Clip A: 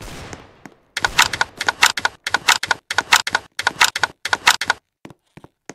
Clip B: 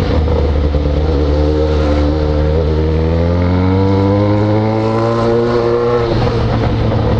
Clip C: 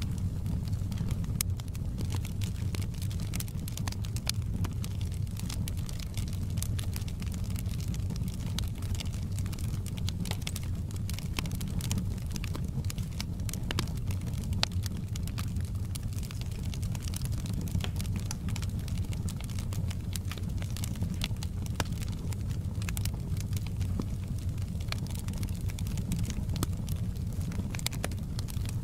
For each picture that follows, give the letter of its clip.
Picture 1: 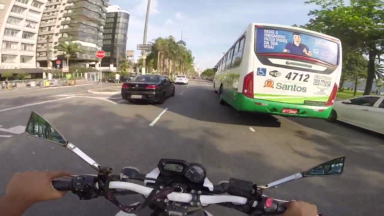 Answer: B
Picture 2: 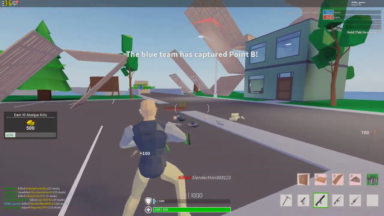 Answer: A